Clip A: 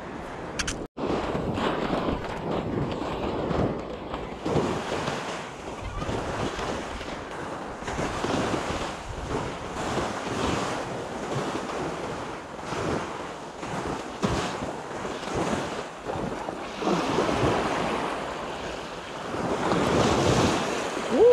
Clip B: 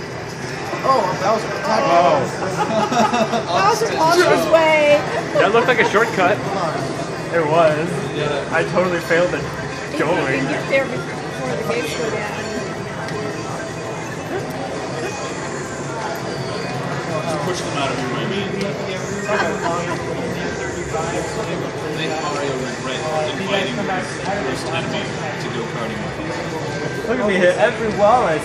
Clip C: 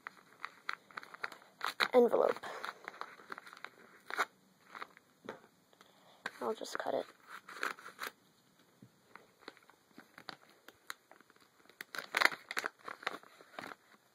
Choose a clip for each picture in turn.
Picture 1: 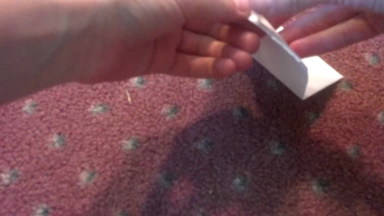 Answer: C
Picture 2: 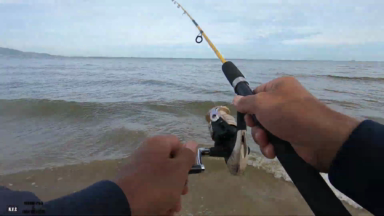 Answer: A